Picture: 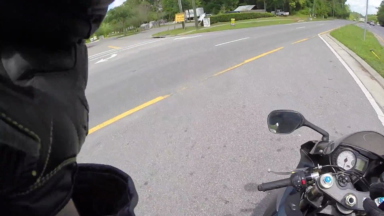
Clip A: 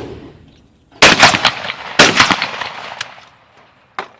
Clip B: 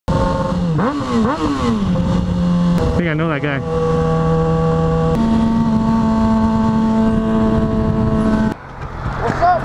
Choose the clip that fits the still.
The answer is B